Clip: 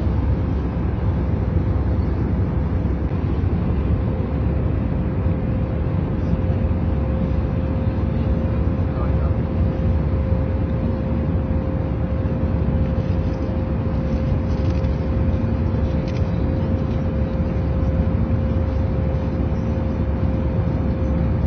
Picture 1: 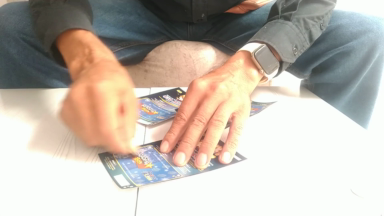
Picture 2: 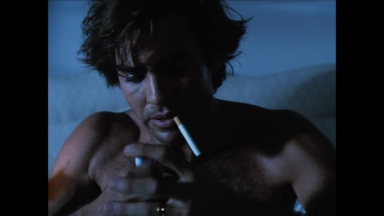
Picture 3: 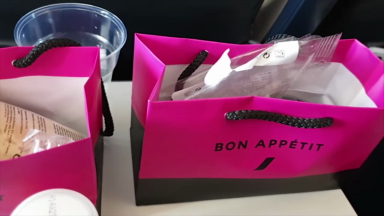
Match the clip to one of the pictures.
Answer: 3